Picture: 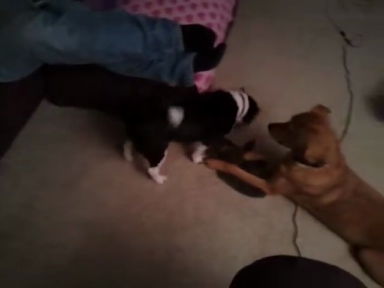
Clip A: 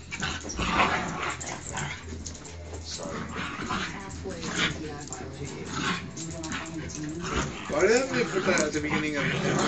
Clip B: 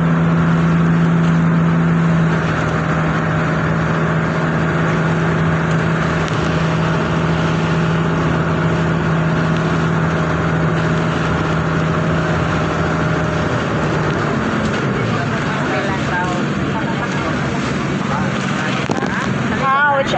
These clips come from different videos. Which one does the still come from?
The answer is A